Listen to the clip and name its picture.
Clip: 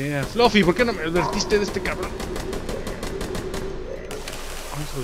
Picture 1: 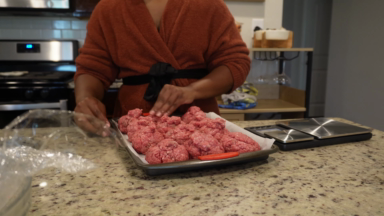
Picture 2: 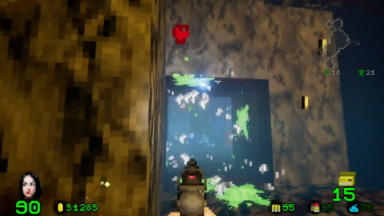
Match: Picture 2